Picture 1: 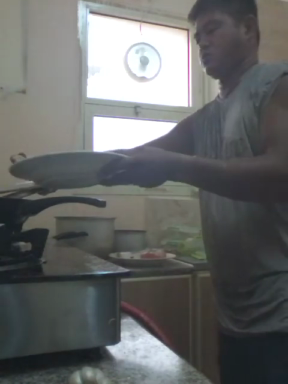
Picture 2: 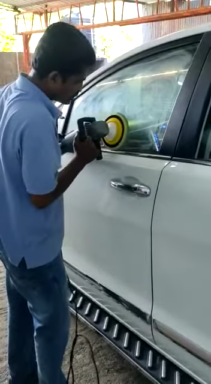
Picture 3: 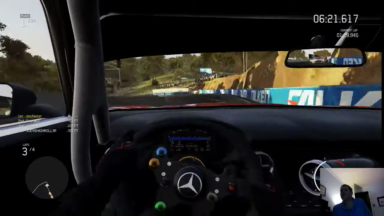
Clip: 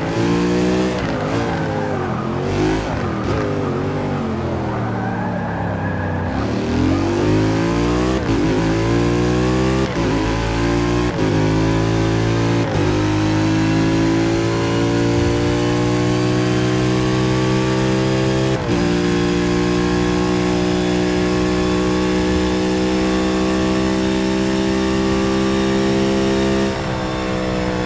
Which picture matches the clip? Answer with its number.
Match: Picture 3